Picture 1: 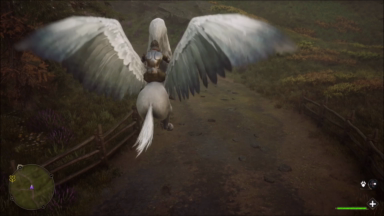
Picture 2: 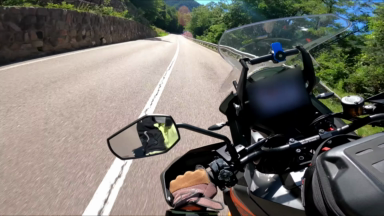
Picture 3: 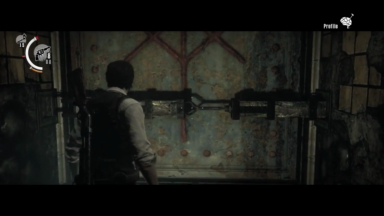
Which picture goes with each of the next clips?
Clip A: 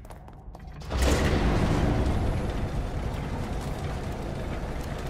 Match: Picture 3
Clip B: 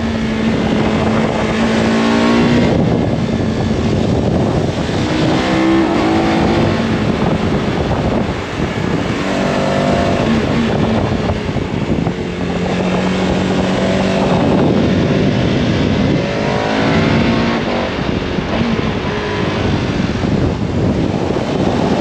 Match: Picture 2